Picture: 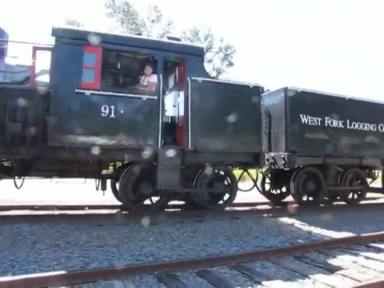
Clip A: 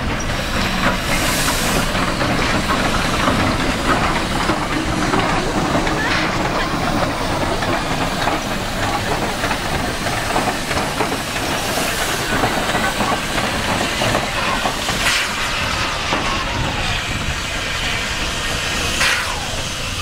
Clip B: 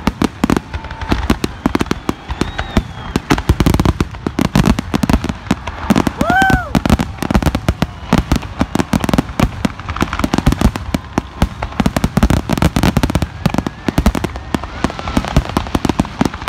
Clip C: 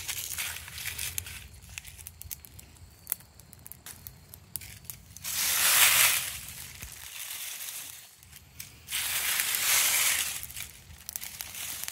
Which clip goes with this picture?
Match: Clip A